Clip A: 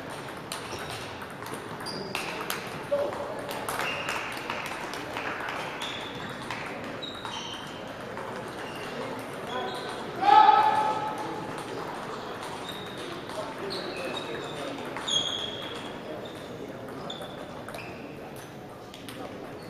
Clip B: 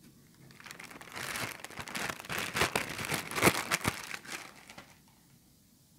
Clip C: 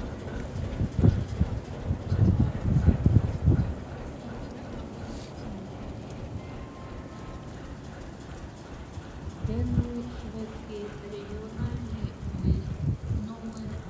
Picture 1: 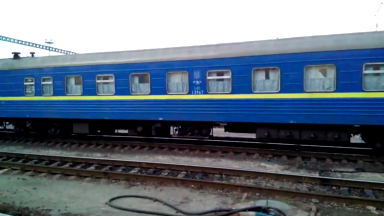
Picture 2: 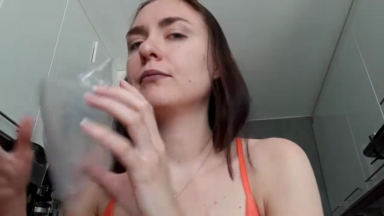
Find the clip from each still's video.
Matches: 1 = C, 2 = B